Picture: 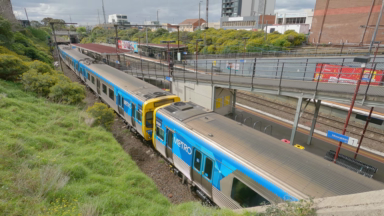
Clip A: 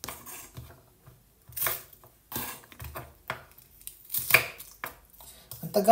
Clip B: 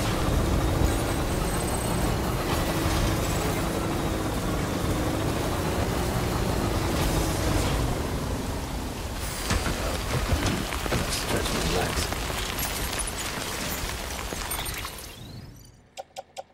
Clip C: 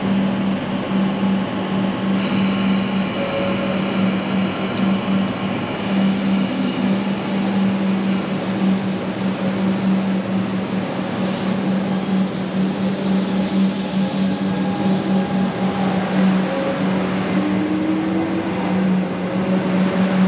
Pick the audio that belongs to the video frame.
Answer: C